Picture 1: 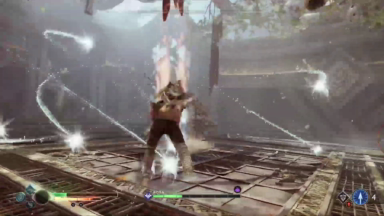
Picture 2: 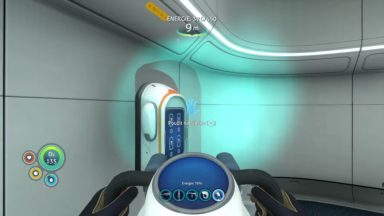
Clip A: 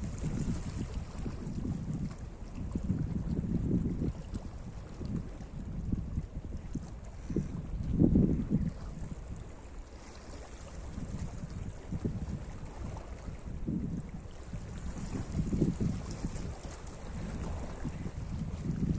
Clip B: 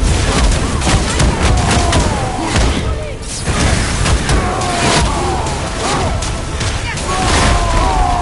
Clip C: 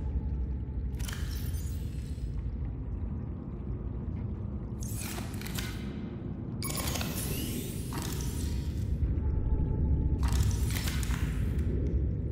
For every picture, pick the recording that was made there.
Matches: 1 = B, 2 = C